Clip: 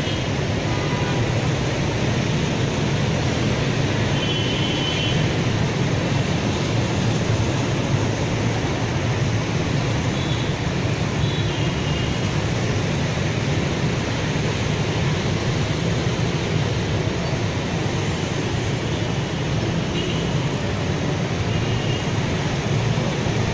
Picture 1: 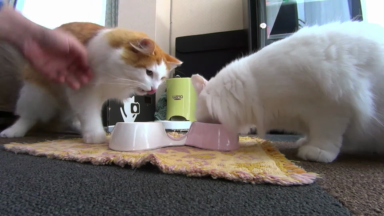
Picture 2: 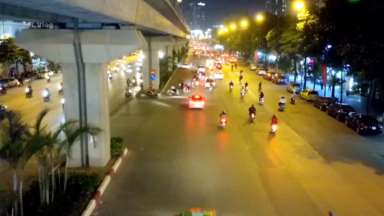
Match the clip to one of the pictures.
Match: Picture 2